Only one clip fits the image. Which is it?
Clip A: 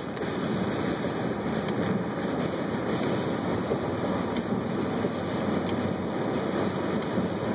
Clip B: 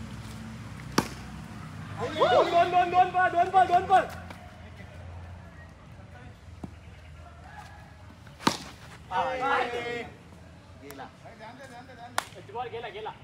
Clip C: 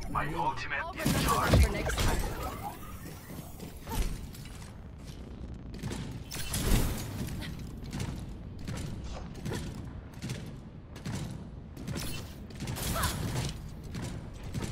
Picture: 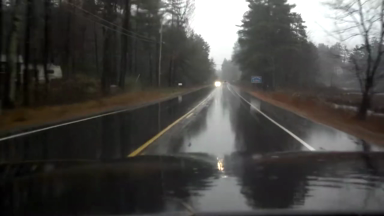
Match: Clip A